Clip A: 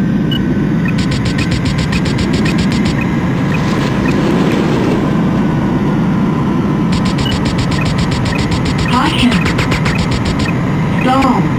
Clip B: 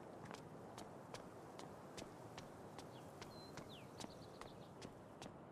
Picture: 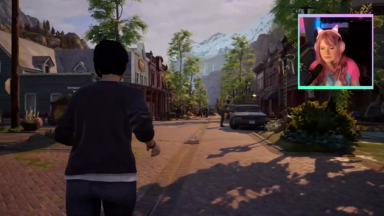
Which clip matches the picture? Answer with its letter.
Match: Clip B